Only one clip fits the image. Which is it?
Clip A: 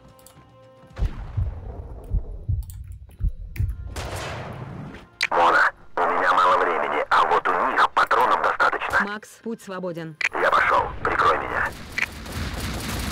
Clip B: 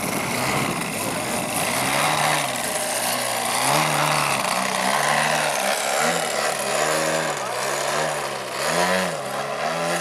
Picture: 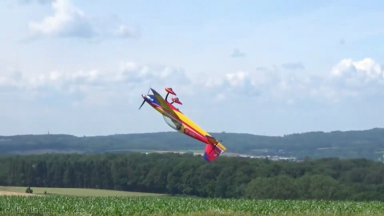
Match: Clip B